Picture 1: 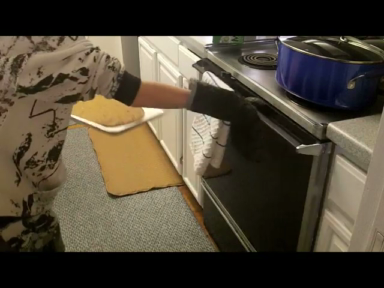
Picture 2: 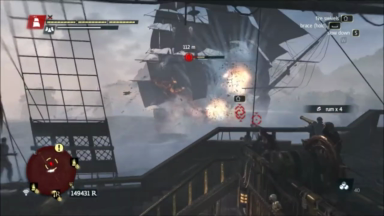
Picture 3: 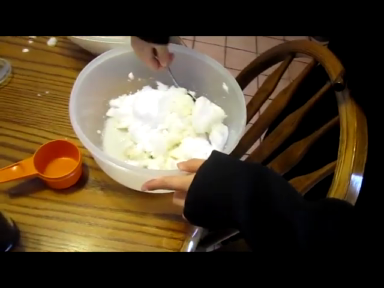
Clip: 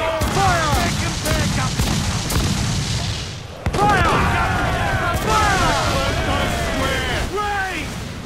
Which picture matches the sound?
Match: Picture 2